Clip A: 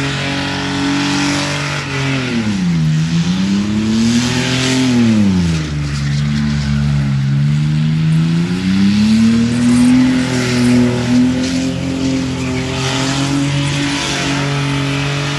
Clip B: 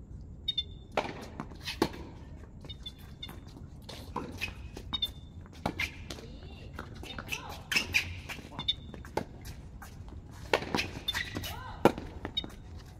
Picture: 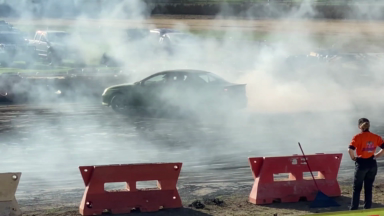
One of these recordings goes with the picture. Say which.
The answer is A